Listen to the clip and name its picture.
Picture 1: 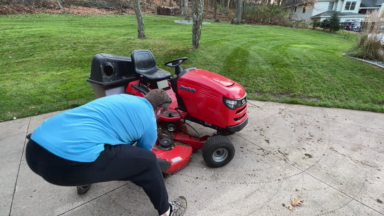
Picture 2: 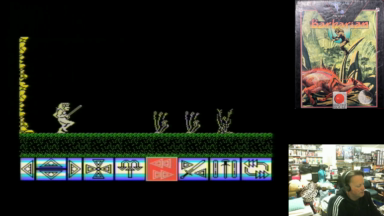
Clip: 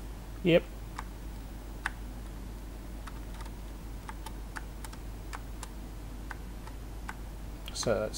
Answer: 2